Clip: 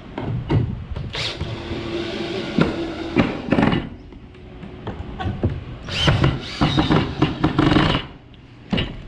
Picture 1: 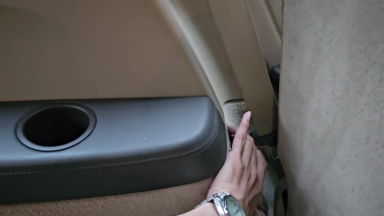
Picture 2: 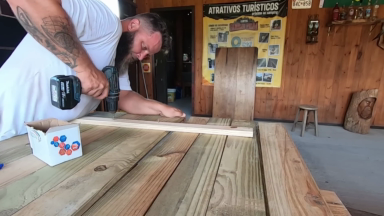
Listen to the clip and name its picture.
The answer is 2